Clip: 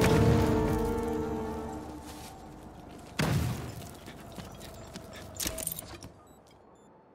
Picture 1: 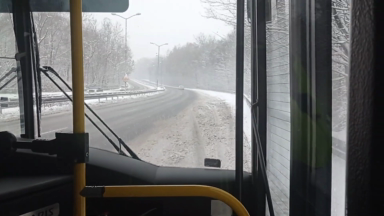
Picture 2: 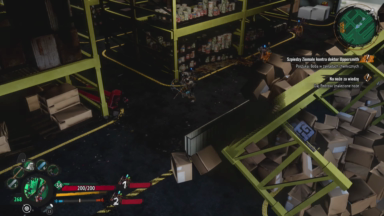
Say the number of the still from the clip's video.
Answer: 2